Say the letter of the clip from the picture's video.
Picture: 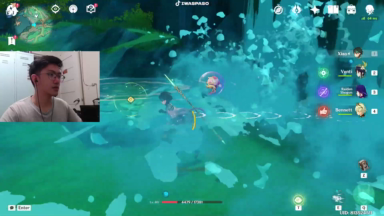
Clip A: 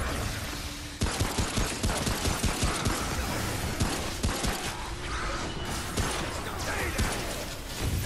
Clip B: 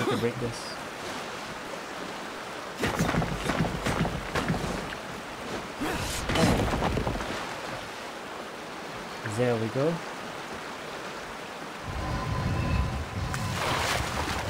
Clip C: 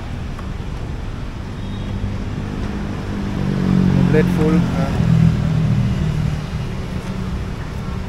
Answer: B